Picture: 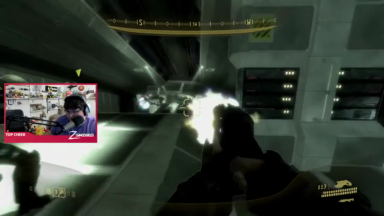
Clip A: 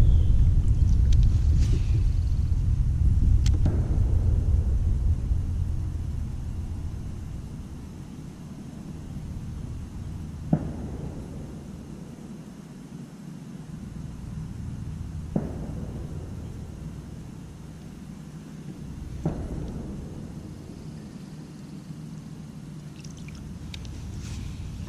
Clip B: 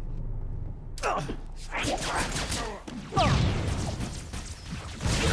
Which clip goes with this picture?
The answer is B